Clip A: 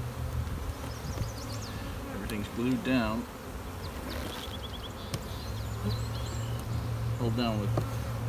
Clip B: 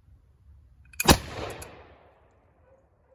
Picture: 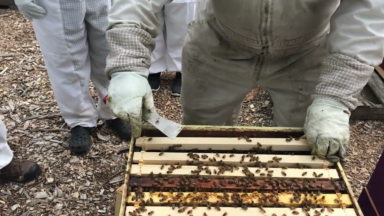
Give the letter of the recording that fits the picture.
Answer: A